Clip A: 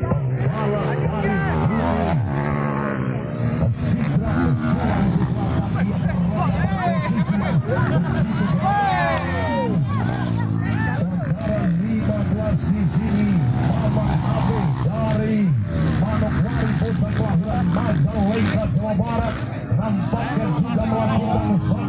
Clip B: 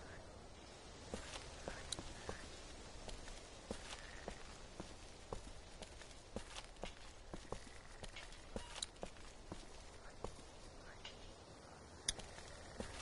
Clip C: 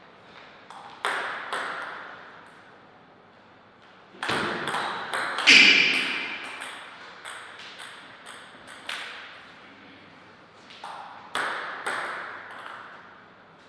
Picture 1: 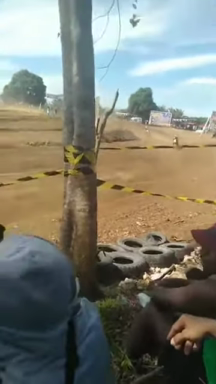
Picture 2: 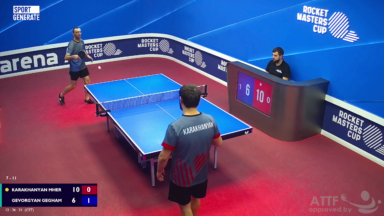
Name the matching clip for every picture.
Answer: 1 A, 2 C